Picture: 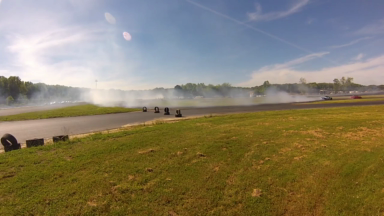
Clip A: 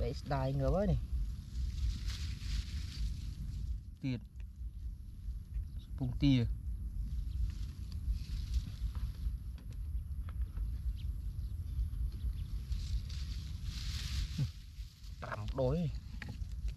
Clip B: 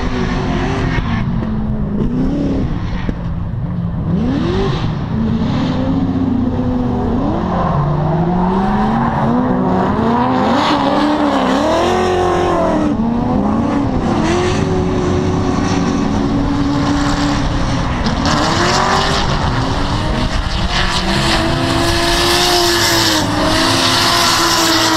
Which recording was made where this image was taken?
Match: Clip B